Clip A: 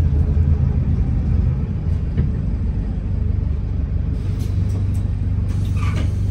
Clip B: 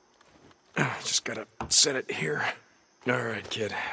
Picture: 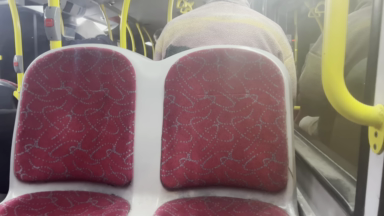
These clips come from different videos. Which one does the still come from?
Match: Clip A